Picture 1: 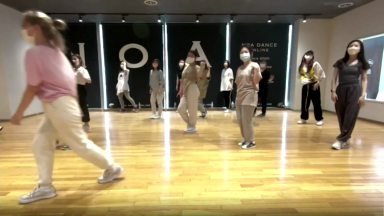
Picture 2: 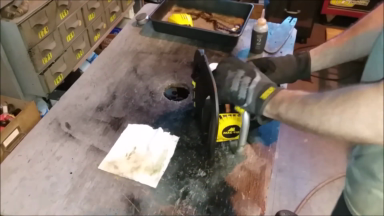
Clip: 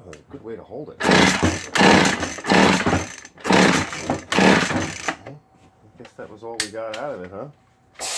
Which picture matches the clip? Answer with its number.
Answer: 2